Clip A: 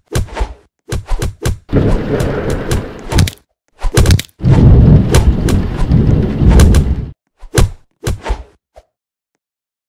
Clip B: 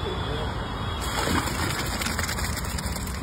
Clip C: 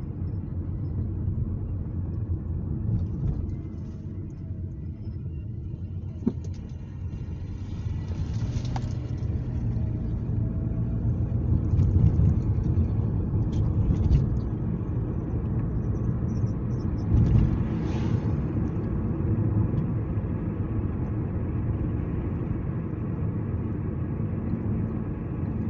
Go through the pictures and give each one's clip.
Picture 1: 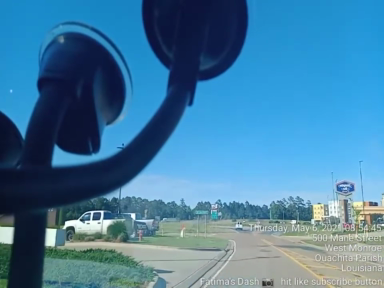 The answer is C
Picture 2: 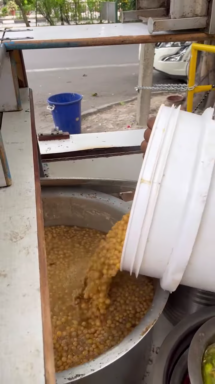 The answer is B